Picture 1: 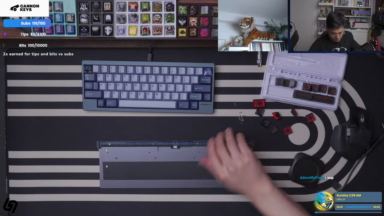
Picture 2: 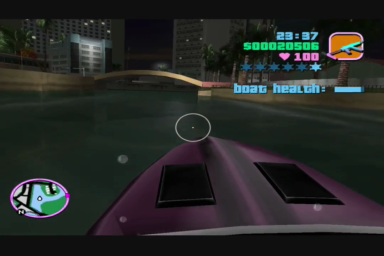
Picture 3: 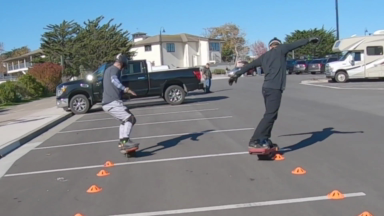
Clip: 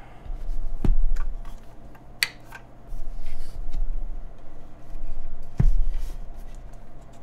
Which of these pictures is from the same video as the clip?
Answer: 1